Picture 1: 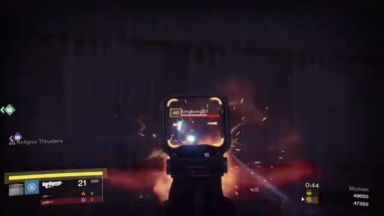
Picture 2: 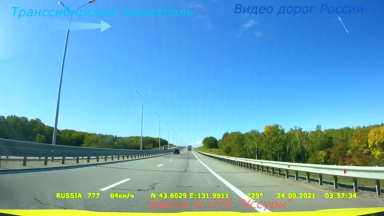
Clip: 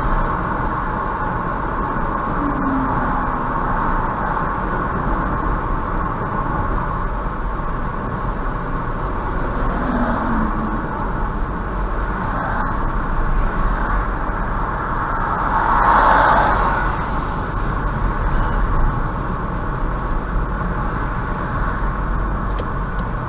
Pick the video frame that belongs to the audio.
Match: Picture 2